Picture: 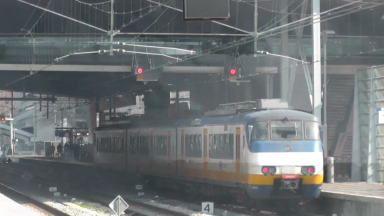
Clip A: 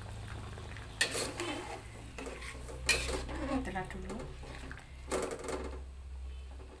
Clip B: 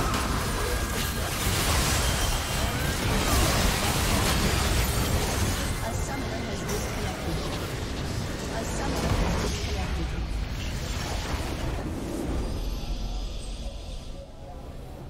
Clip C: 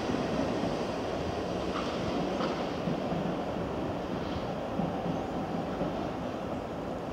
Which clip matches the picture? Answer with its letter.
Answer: C